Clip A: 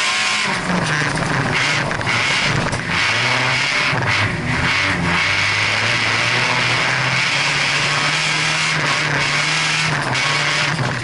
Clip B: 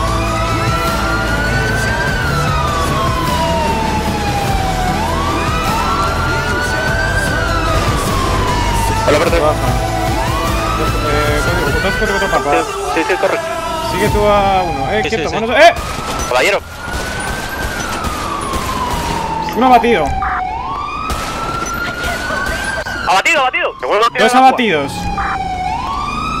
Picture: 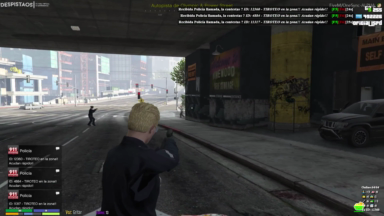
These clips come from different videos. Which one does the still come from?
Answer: B